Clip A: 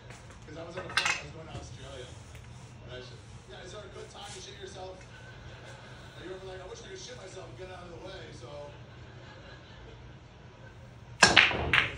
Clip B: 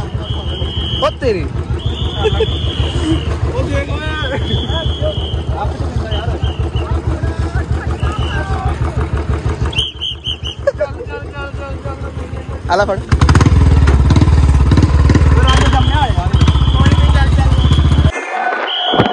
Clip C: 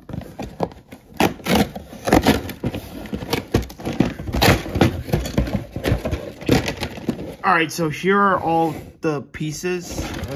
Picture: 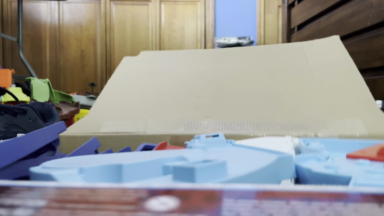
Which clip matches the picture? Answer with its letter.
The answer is C